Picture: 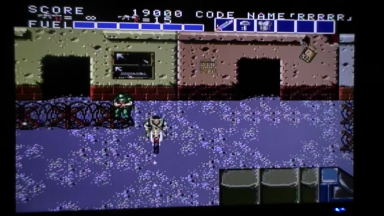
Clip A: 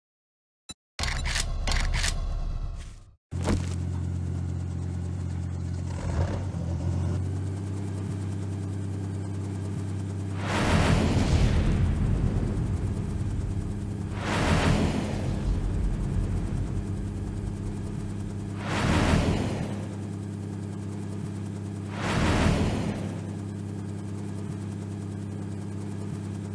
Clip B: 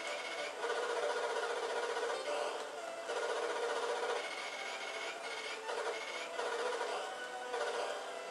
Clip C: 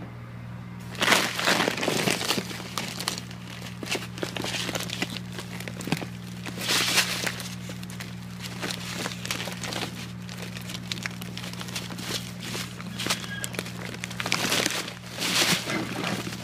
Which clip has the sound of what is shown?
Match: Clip B